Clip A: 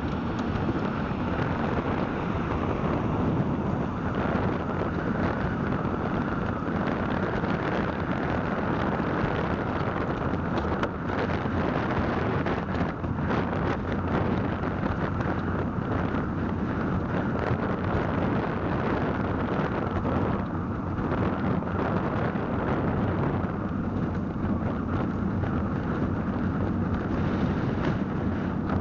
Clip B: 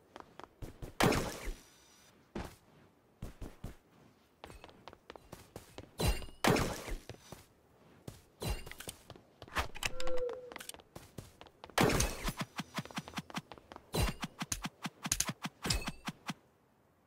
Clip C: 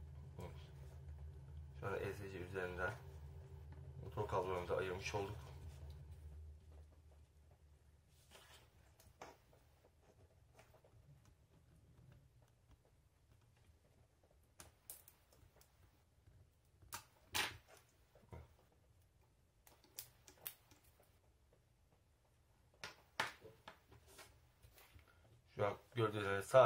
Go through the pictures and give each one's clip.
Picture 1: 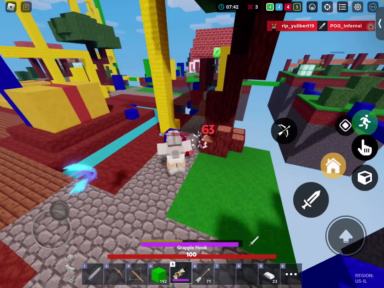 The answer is B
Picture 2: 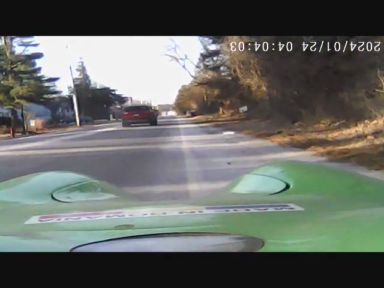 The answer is A